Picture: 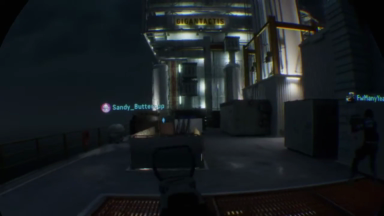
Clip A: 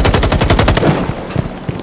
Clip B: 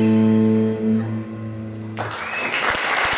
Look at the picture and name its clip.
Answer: A